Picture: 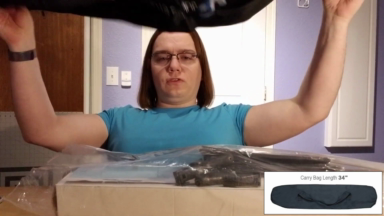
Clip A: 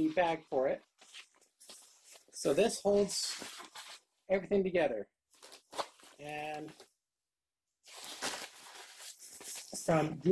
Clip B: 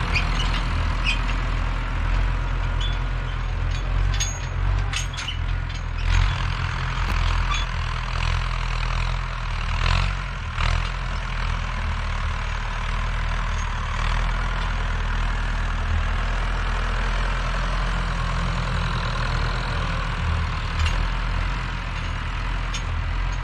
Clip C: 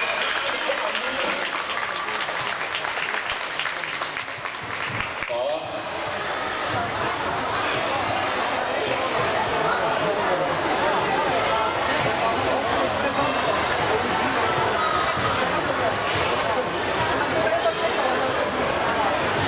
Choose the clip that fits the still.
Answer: A